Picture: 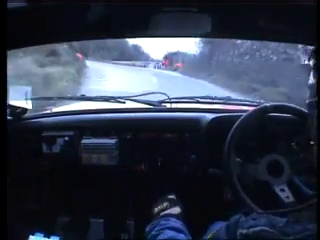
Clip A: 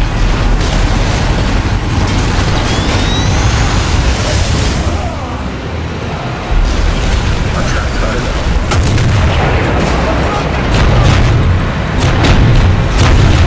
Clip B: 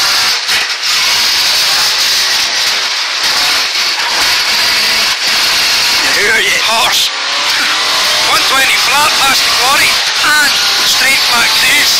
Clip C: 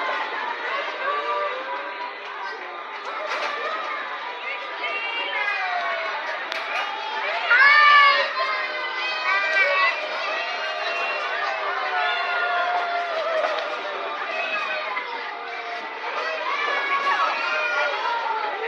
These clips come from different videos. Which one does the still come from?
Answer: B